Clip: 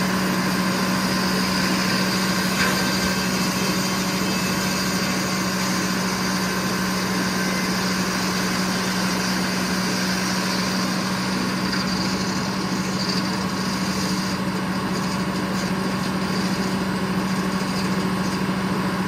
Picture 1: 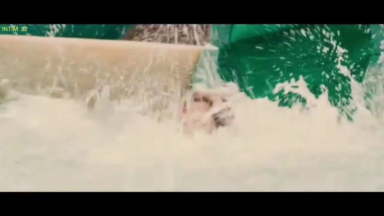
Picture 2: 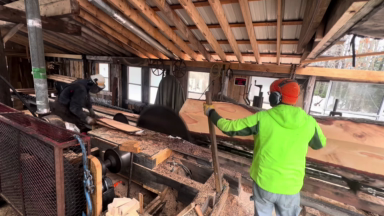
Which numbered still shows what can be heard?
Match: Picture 2